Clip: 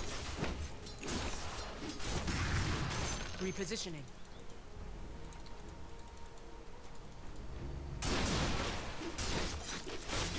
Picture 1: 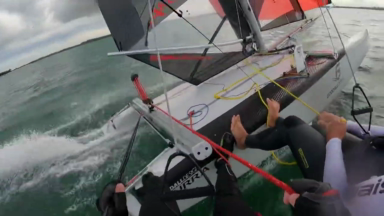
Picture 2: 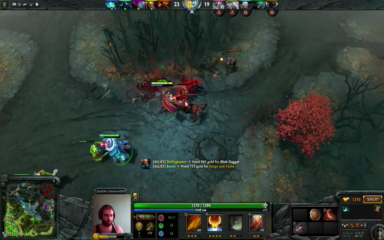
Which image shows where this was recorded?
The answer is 2